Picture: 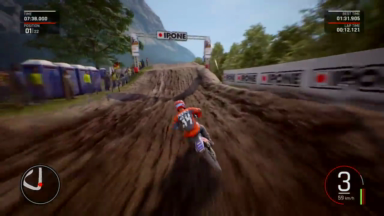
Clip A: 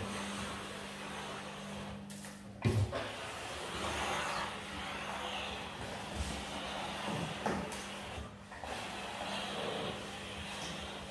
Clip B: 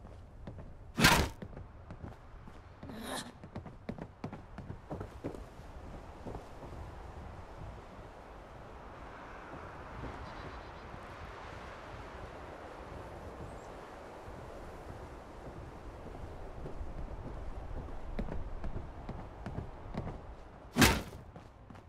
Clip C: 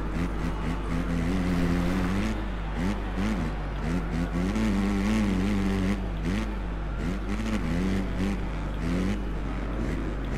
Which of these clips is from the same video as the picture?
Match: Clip C